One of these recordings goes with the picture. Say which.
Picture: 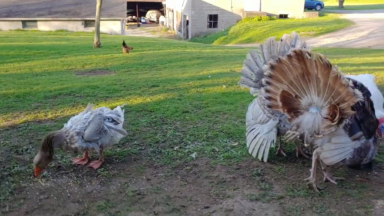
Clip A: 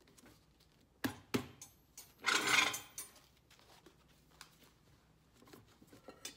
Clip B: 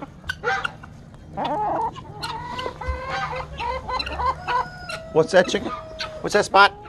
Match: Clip B